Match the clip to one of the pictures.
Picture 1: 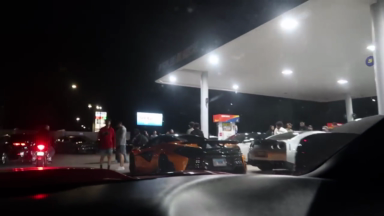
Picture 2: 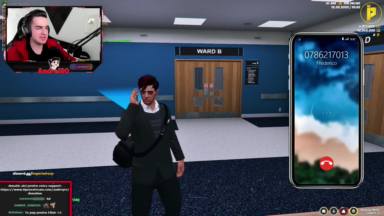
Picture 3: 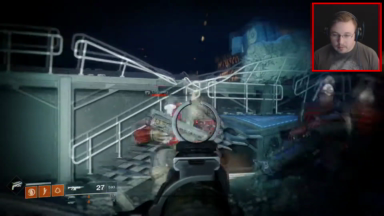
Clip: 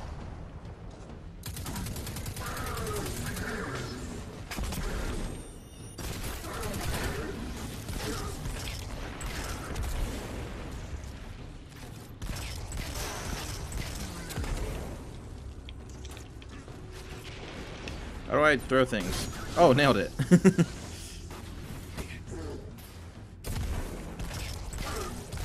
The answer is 3